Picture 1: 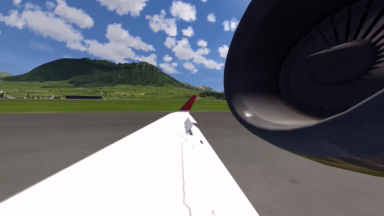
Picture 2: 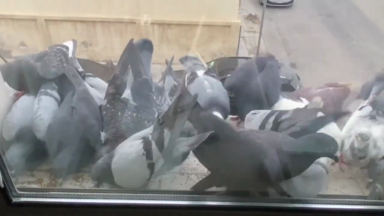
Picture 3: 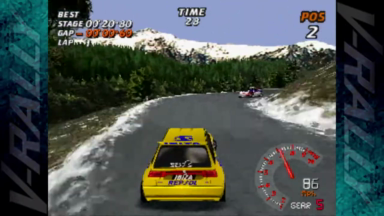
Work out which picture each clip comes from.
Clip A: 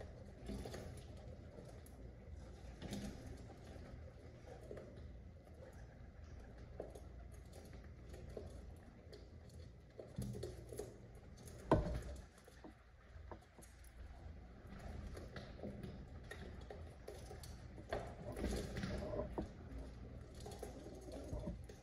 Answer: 2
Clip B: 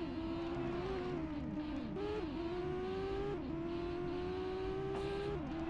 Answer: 3